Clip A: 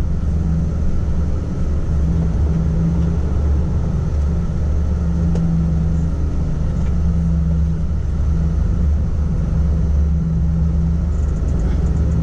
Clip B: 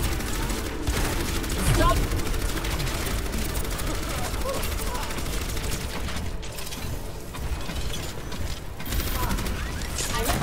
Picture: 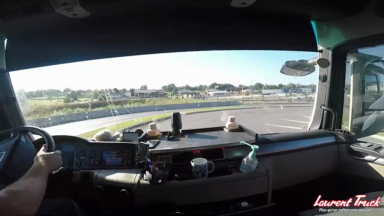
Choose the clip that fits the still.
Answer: A